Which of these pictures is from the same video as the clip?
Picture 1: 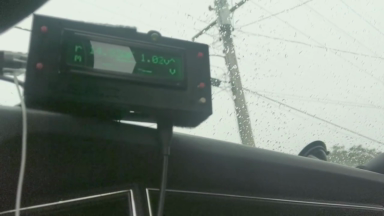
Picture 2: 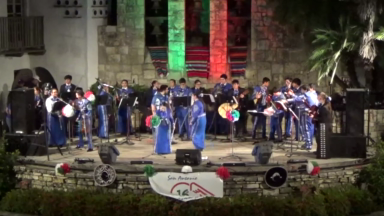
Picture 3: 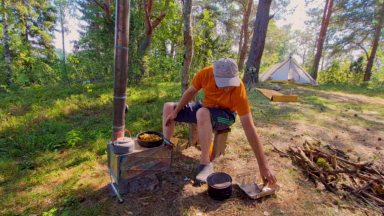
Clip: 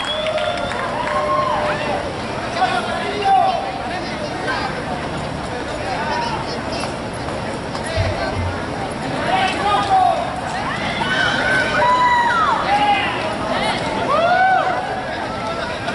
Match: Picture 2